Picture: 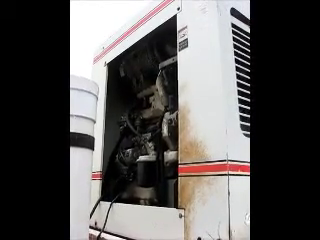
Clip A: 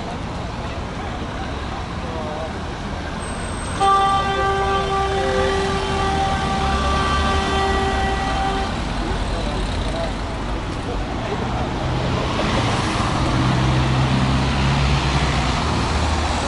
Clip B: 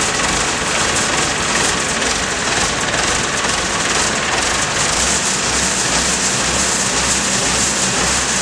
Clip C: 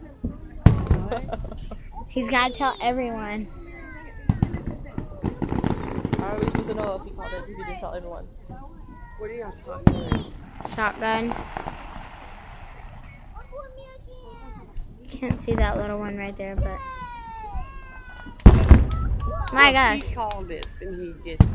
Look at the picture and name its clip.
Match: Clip B